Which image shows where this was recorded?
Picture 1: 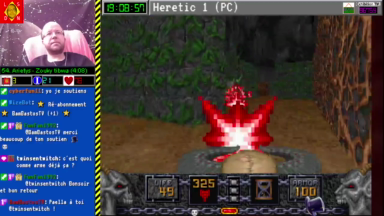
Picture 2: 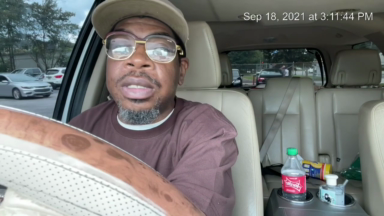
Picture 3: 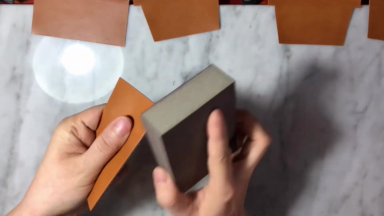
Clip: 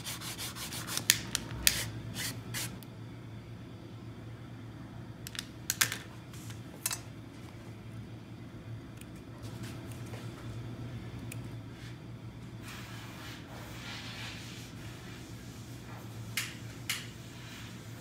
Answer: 3